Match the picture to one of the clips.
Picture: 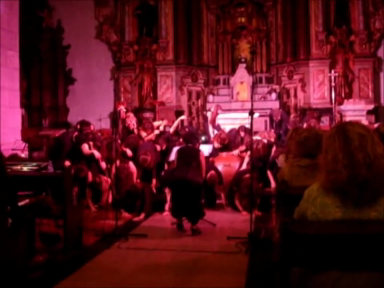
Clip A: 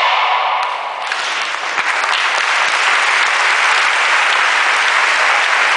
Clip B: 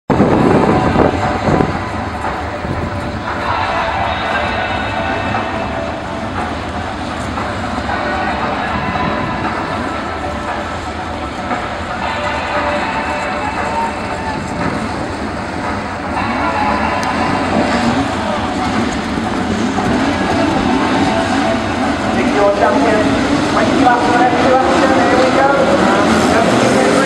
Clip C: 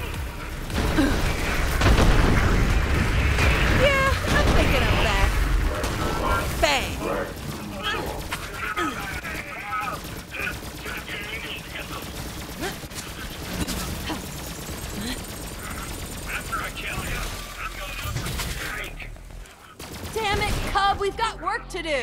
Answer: A